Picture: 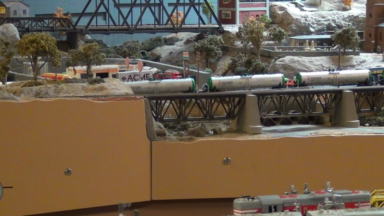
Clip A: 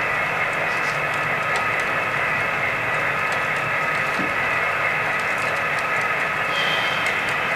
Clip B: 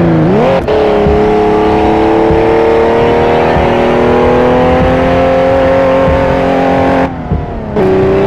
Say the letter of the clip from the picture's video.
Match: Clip A